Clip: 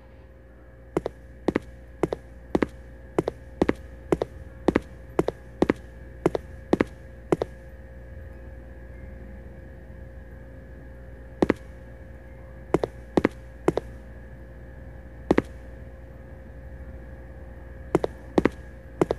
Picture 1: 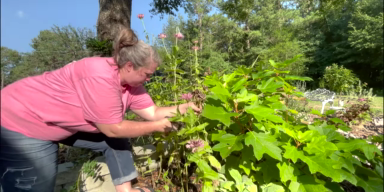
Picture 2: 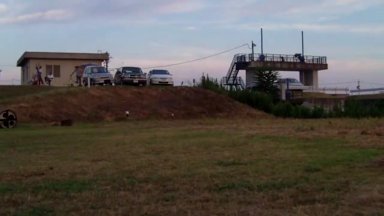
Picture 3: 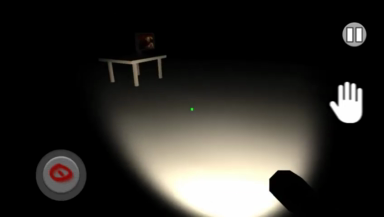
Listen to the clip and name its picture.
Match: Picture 3